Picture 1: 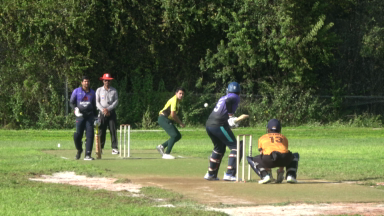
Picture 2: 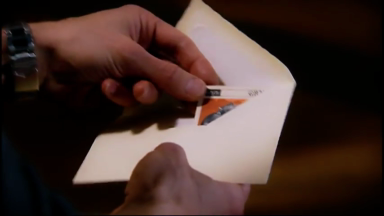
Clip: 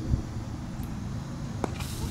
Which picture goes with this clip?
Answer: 1